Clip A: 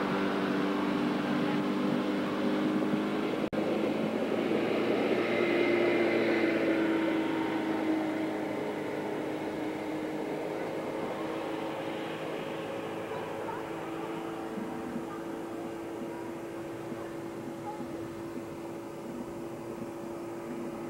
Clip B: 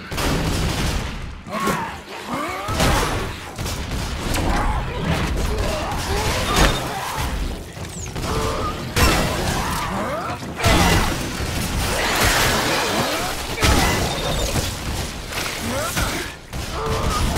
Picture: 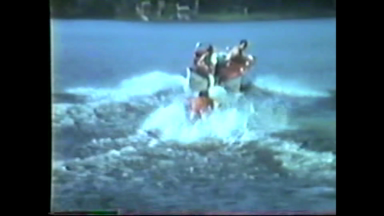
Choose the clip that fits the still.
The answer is A